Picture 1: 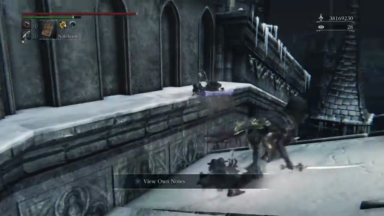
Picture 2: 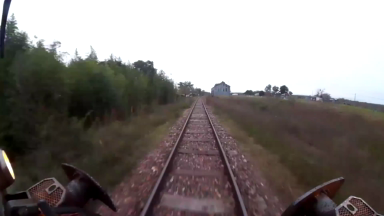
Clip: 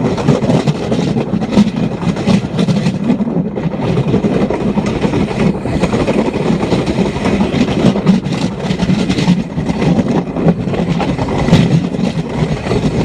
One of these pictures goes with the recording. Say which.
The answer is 2